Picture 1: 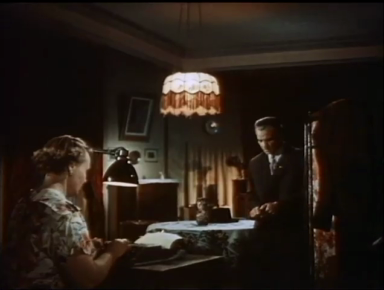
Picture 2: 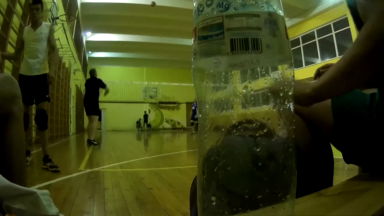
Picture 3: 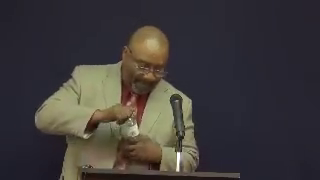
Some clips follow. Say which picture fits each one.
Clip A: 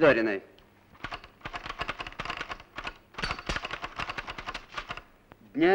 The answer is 1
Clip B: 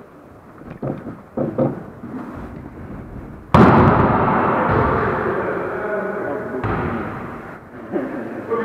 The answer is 2